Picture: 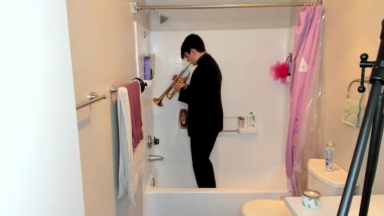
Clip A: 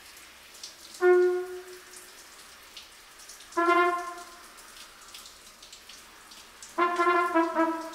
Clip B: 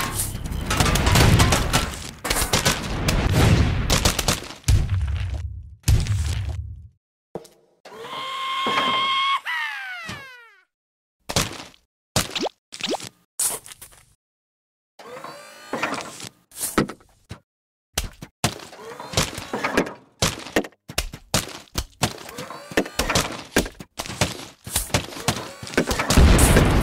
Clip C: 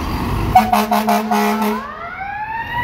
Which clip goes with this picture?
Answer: A